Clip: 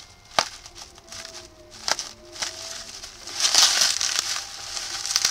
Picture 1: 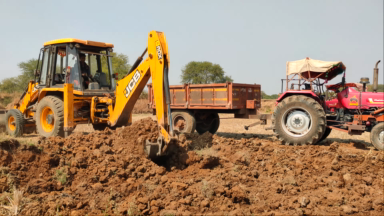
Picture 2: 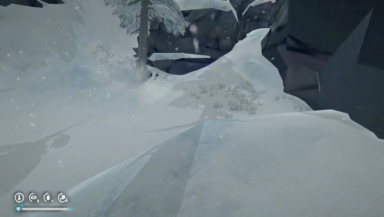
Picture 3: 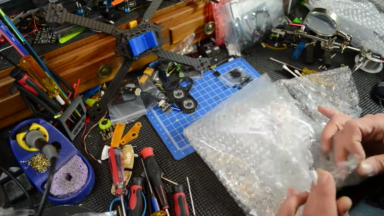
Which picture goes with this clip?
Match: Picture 3